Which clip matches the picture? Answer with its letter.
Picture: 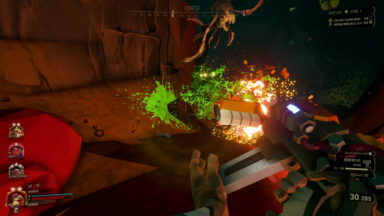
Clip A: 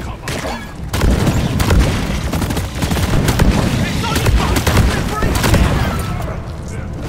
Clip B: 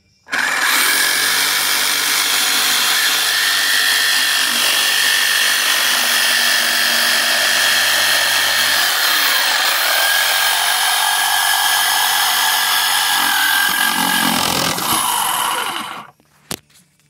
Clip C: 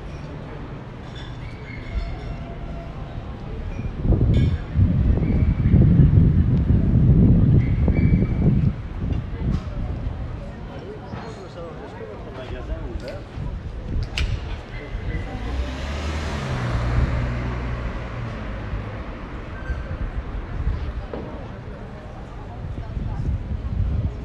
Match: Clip A